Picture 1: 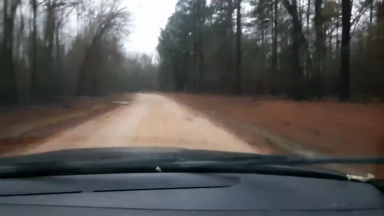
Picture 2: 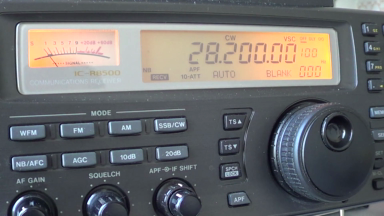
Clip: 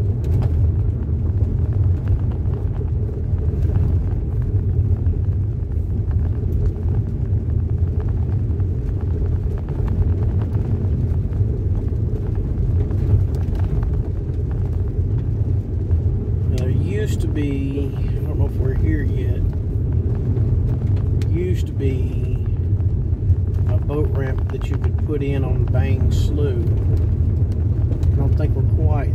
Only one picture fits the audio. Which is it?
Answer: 1